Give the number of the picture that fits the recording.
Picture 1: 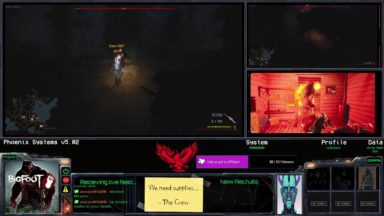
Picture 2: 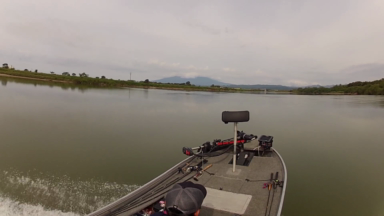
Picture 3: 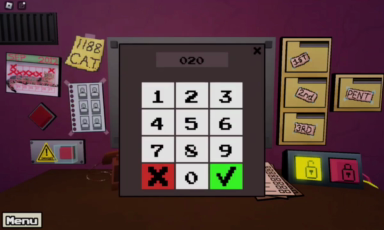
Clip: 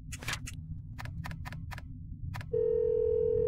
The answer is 3